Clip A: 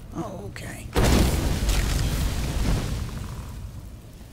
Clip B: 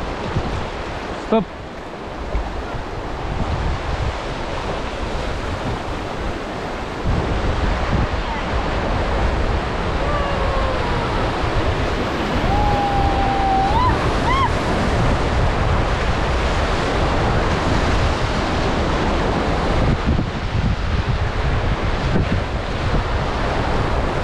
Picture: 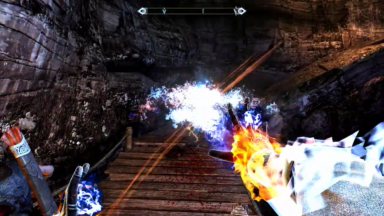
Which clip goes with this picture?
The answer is A